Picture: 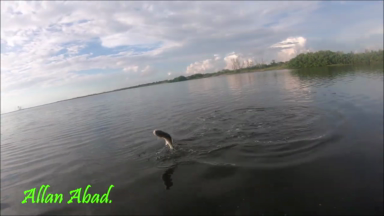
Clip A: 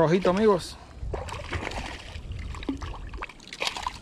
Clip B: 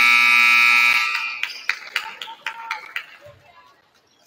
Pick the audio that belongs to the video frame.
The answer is A